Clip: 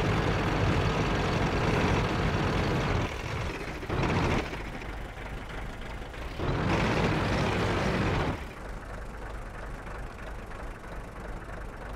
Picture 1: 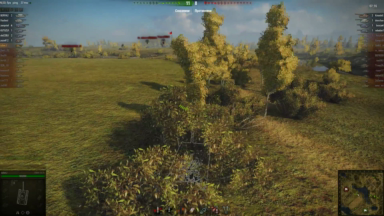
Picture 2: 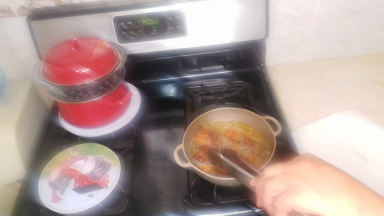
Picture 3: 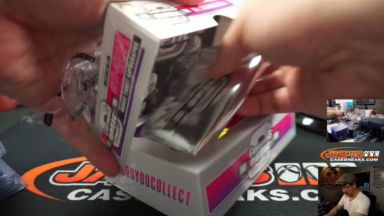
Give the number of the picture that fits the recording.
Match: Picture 1